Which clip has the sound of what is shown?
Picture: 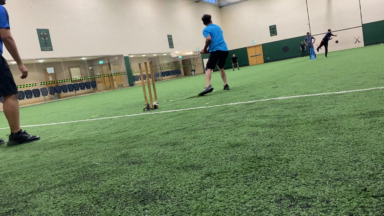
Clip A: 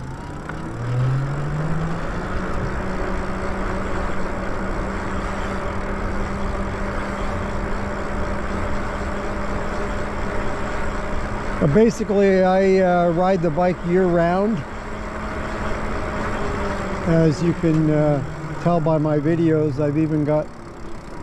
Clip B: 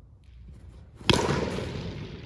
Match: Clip B